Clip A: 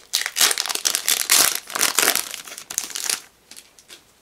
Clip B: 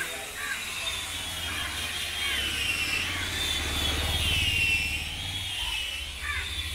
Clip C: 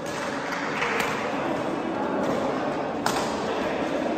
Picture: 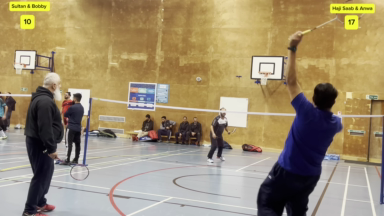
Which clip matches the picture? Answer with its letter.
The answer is C